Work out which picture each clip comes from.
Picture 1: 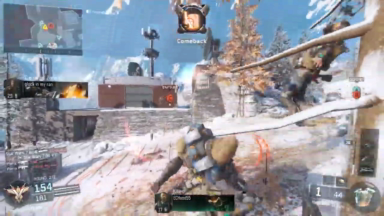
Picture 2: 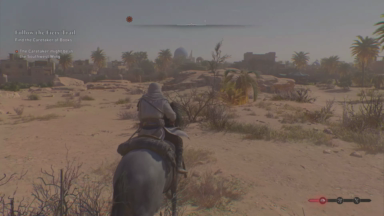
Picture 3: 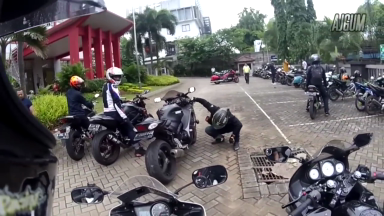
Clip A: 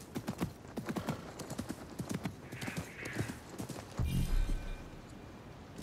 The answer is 2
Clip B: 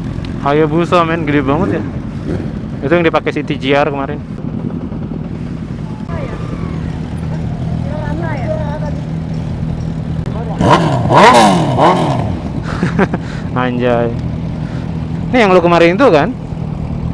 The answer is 3